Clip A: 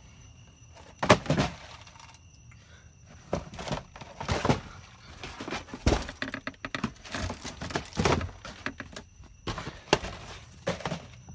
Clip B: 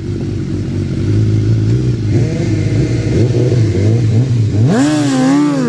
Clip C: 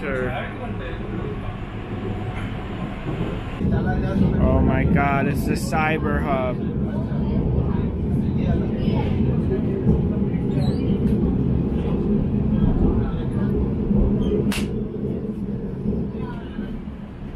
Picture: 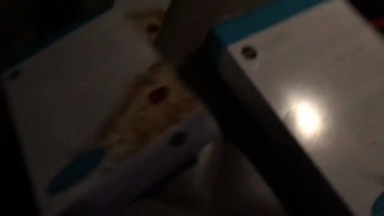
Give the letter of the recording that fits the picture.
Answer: A